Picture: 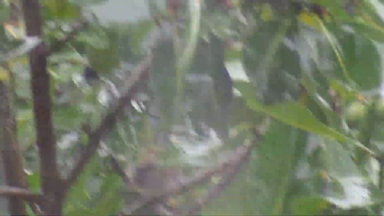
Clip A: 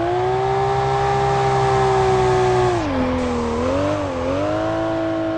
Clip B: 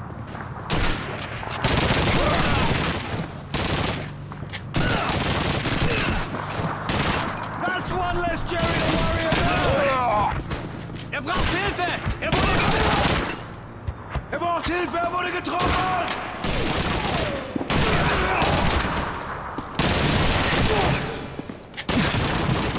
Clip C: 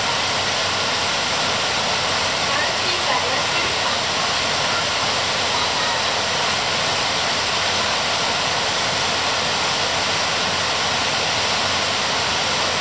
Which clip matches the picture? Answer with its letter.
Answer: C